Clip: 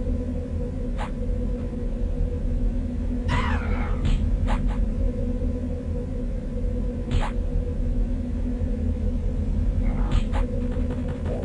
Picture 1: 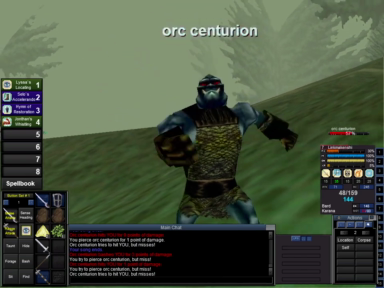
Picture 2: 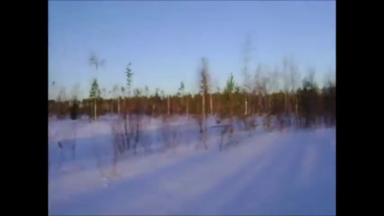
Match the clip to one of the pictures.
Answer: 1